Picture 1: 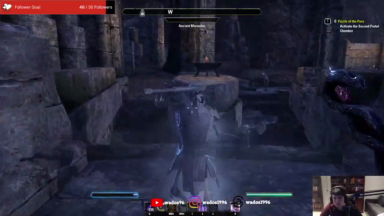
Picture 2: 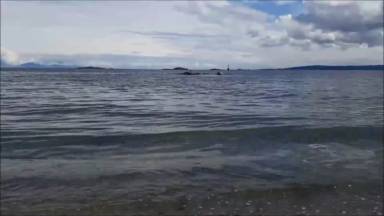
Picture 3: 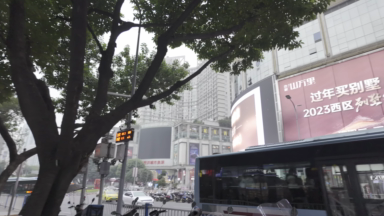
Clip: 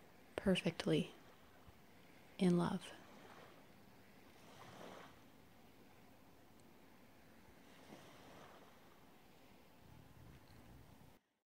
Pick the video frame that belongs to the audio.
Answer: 2